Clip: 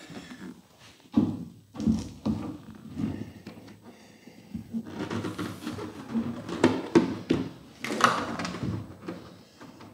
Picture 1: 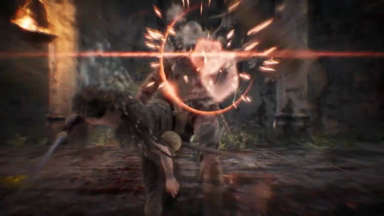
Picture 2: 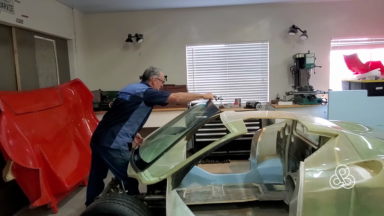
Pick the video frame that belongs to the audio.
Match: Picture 2